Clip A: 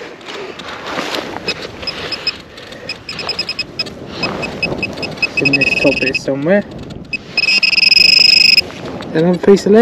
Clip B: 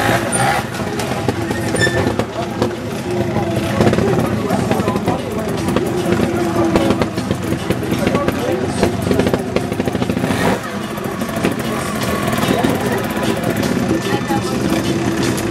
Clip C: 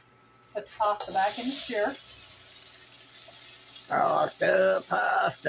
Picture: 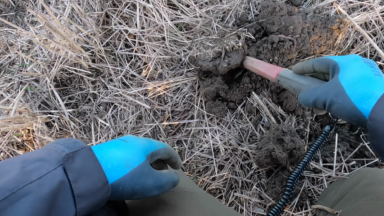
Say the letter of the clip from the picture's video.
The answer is A